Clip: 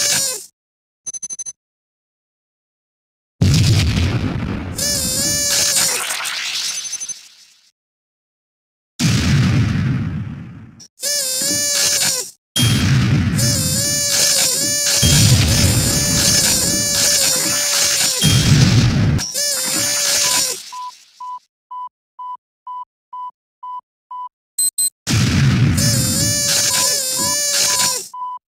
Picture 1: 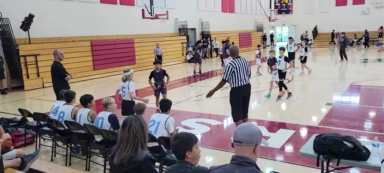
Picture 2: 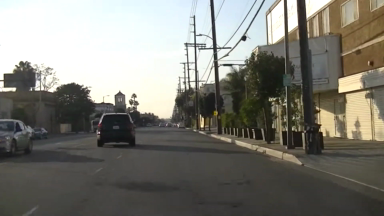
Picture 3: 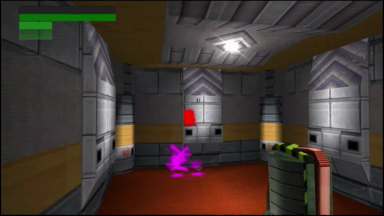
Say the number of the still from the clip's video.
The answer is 3